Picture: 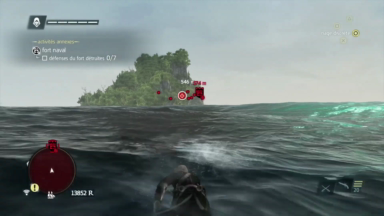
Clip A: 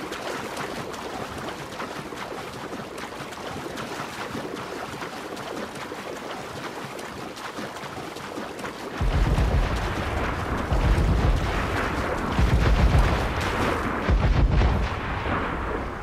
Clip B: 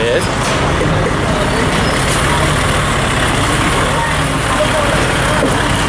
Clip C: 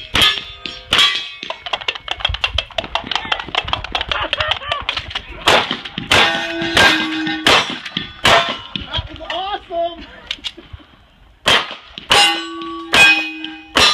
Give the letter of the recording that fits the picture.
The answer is A